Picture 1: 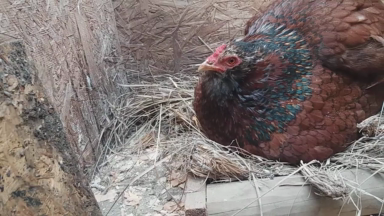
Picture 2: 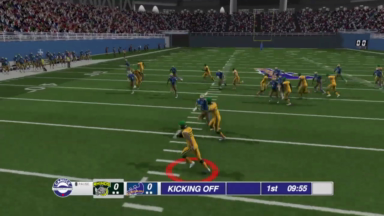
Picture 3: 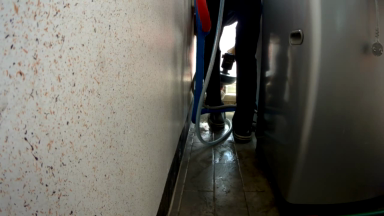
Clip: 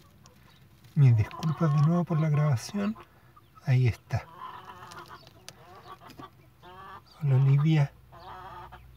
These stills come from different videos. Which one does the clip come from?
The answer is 1